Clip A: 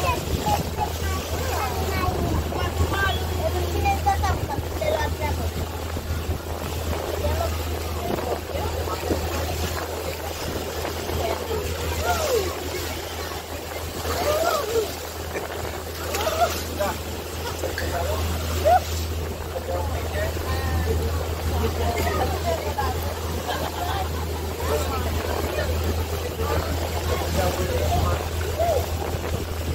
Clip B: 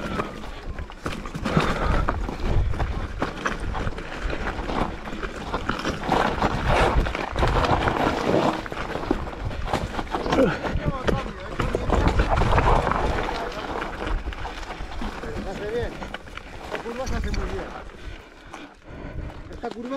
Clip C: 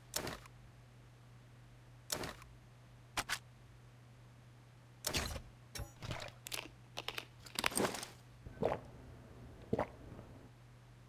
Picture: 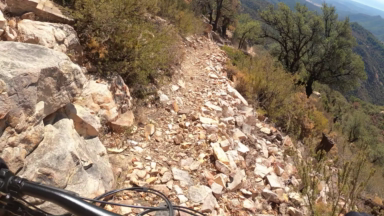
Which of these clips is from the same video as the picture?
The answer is B